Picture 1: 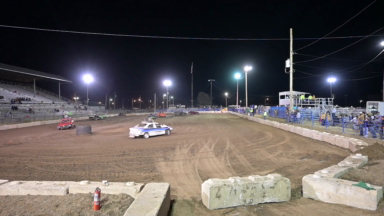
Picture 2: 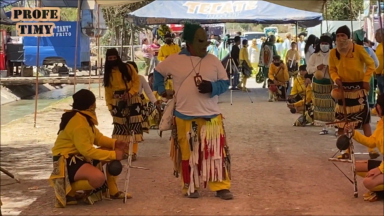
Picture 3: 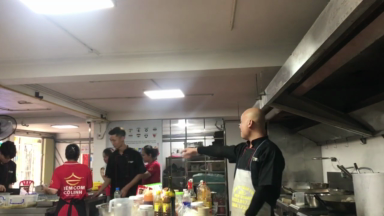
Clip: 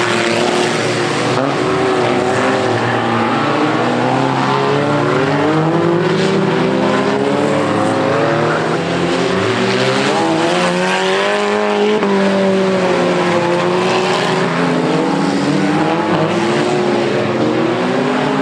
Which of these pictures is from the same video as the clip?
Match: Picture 1